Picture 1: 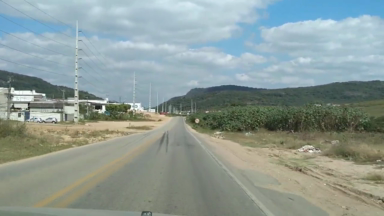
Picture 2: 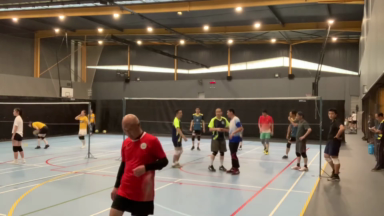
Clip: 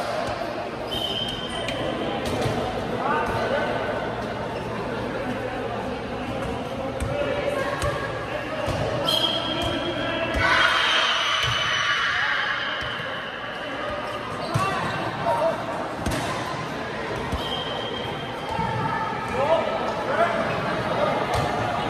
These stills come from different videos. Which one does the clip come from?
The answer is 2